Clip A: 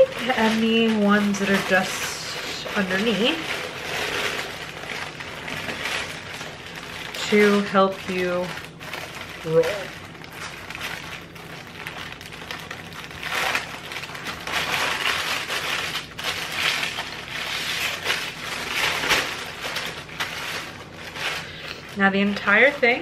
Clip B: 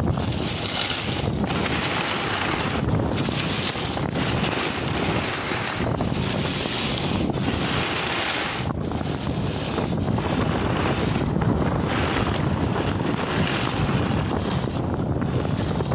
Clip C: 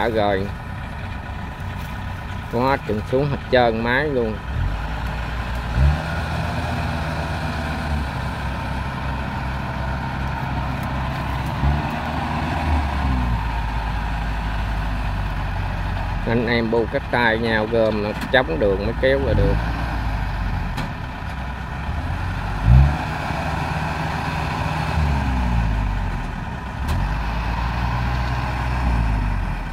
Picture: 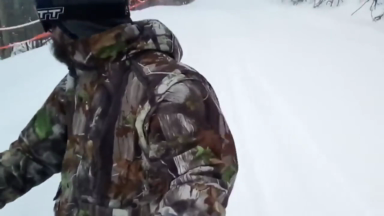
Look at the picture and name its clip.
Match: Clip B